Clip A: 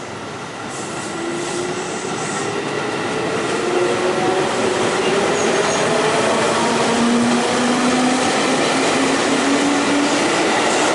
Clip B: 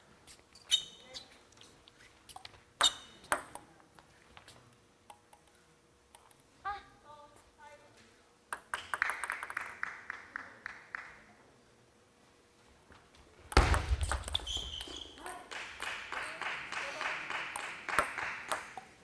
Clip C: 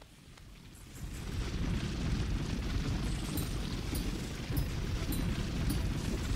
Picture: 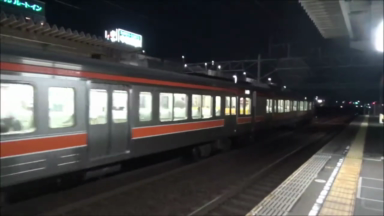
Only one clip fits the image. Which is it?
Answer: A